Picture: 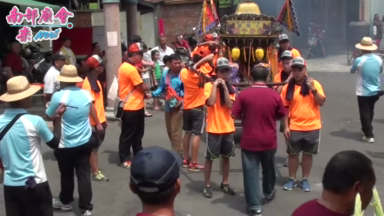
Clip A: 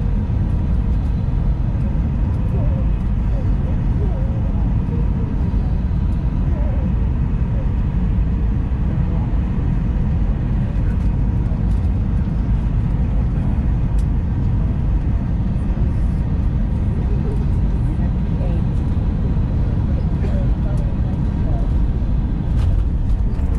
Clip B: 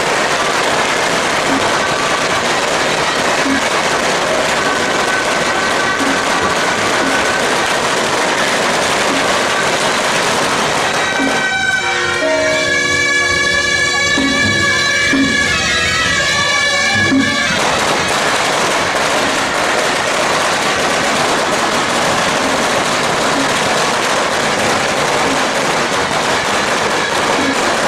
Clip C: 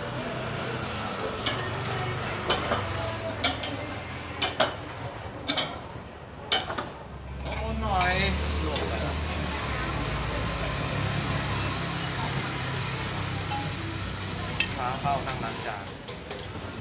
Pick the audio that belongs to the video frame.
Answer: B